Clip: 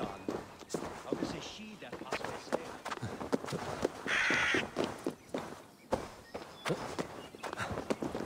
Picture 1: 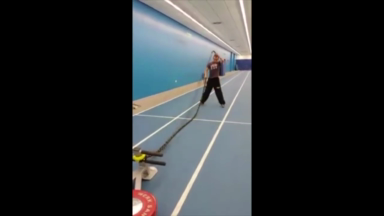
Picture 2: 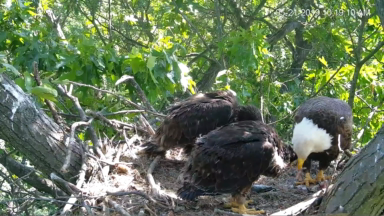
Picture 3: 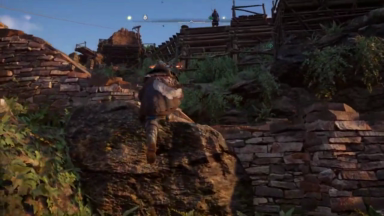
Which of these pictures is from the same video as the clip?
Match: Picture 3